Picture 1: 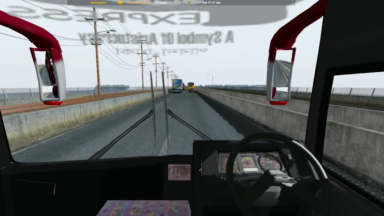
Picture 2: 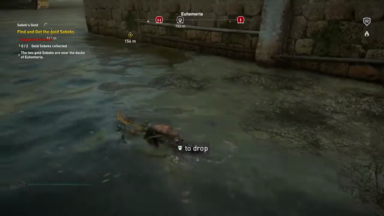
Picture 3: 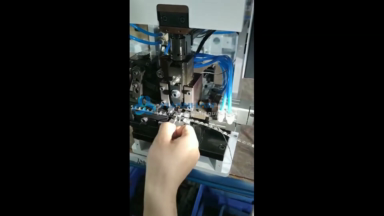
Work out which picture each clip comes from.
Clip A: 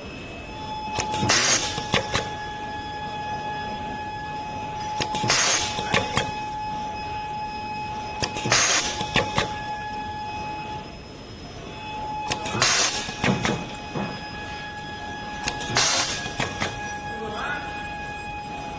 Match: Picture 3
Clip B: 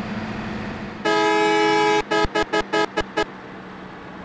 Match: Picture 1